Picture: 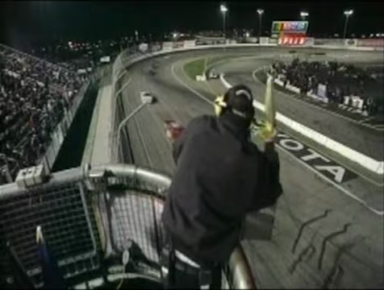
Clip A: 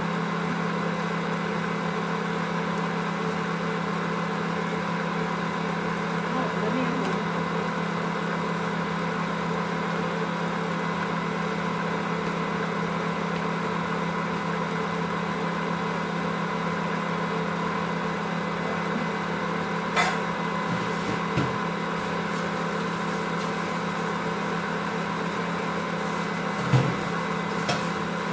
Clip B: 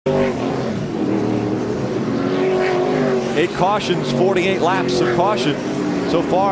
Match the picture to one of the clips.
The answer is B